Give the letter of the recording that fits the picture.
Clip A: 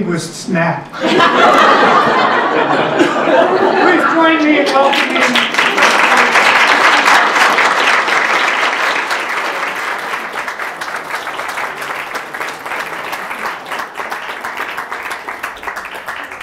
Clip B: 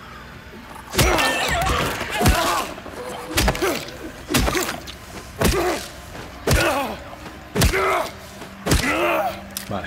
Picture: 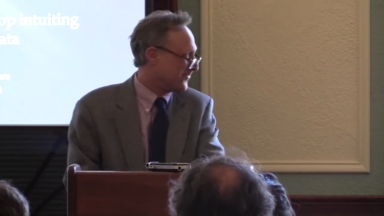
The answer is A